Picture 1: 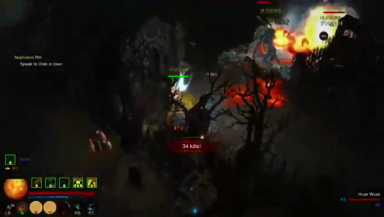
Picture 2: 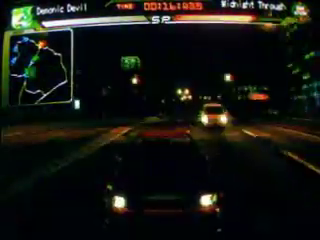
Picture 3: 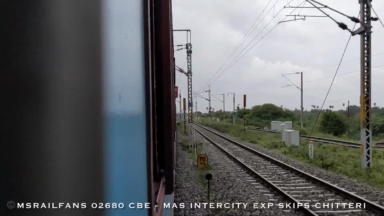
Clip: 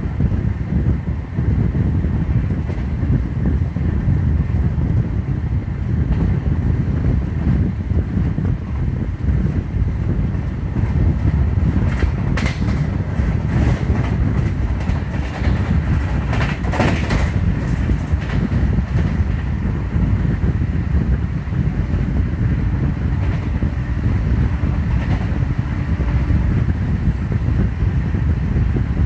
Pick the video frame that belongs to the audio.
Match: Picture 3